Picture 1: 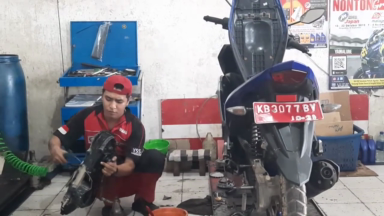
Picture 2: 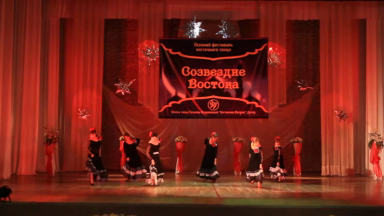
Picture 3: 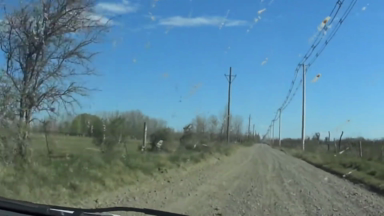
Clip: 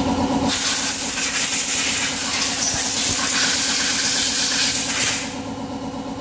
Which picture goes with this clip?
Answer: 1